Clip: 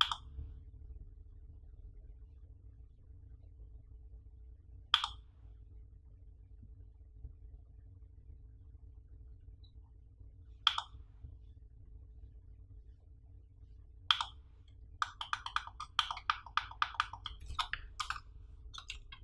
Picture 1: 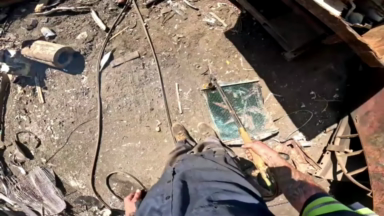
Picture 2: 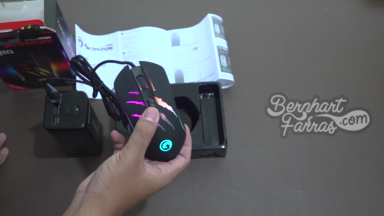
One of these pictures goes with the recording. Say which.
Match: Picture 2